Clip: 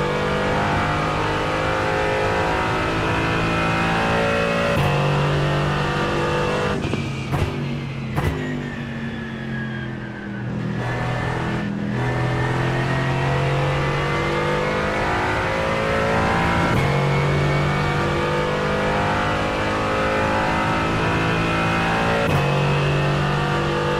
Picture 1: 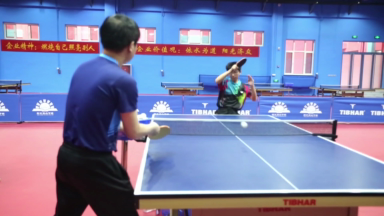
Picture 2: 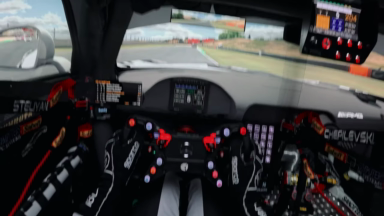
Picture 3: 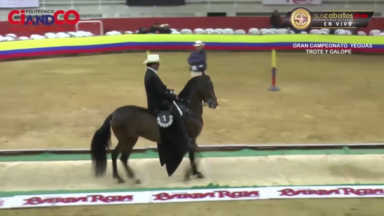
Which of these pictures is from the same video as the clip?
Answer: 2